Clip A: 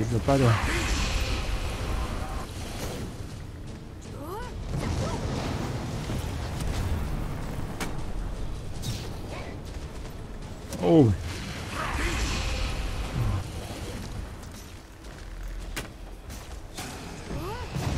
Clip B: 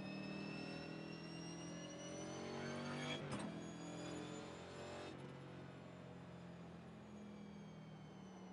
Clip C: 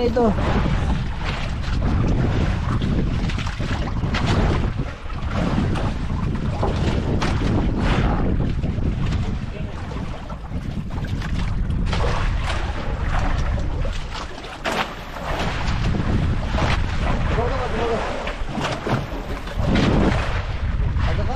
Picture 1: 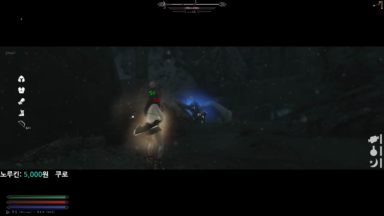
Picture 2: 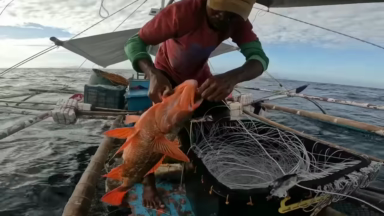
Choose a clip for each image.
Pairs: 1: A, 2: C